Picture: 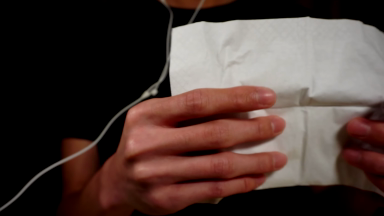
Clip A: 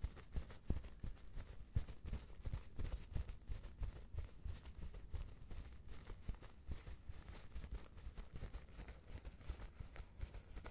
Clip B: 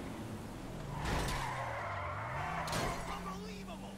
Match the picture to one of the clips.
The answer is A